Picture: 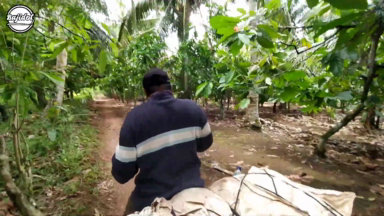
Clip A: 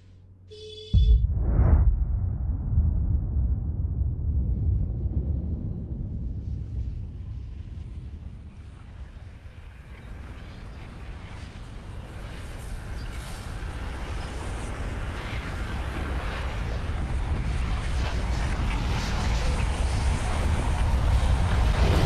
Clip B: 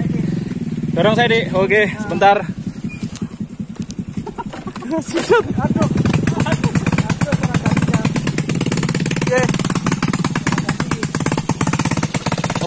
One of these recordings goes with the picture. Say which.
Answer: B